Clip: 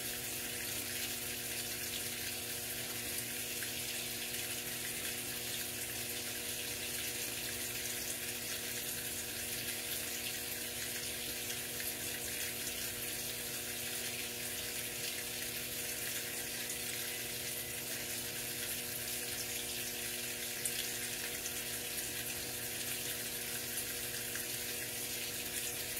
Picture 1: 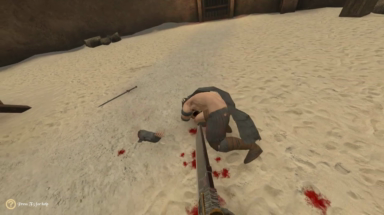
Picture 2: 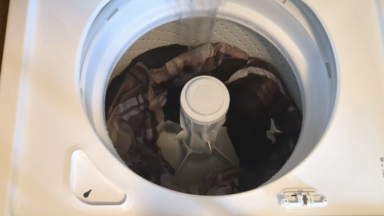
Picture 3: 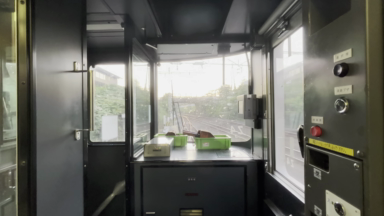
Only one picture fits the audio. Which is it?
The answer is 2